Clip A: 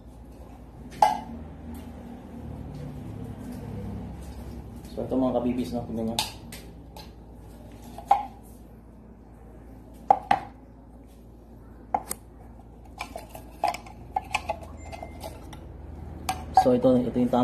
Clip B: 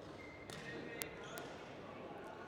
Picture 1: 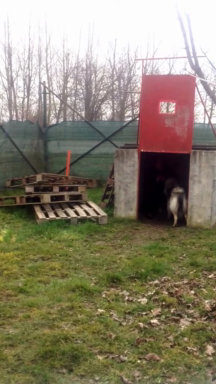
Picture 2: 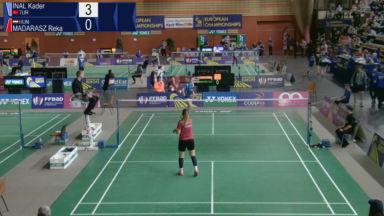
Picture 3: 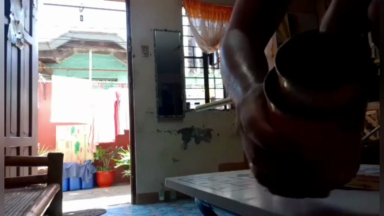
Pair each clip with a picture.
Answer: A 3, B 2